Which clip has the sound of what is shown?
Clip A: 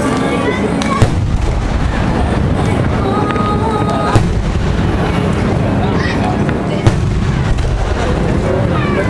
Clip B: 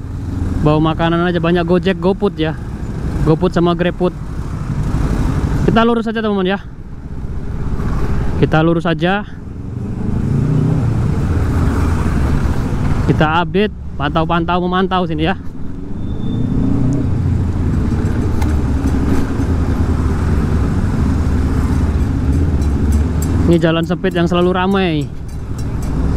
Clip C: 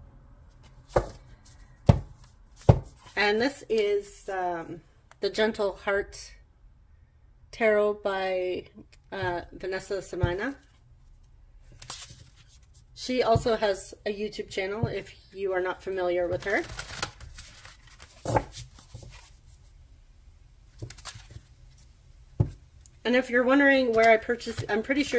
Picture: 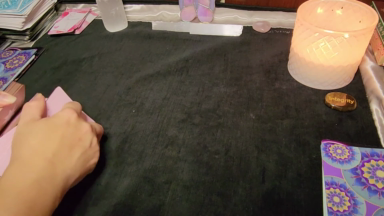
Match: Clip C